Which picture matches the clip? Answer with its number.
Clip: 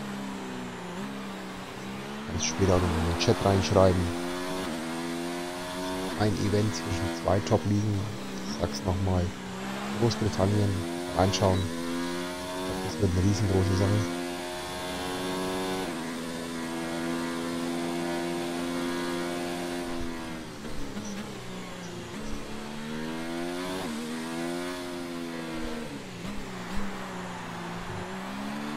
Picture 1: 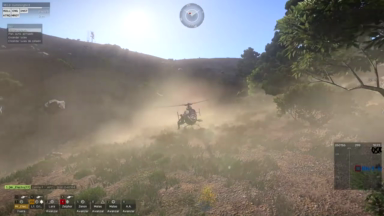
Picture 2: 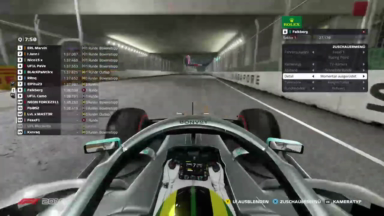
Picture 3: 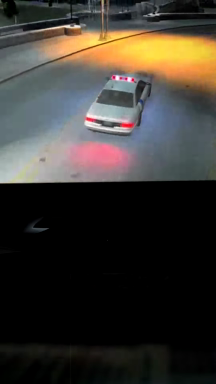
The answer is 2